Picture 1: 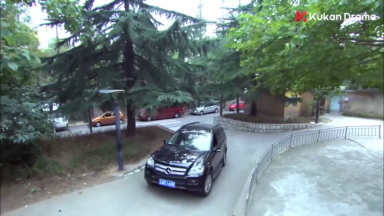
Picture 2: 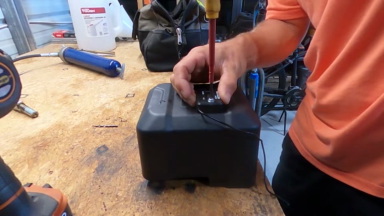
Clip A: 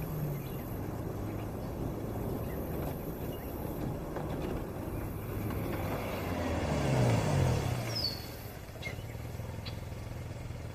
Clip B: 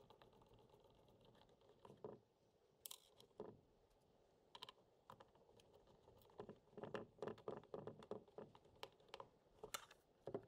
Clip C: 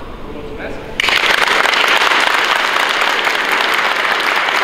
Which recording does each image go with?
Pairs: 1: A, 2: B